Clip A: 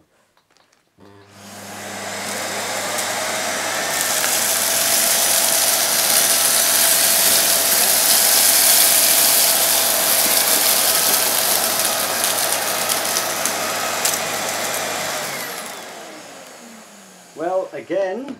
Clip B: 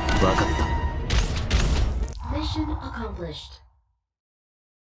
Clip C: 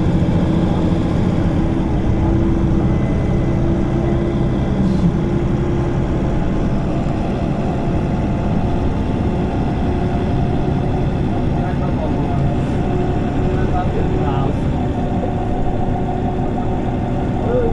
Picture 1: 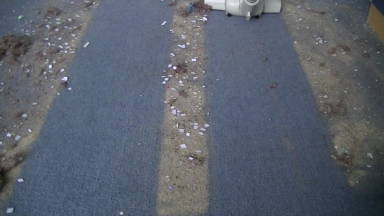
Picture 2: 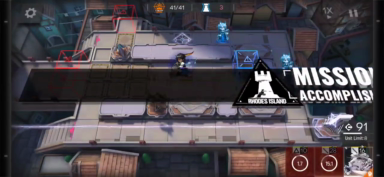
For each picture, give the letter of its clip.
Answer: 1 A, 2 B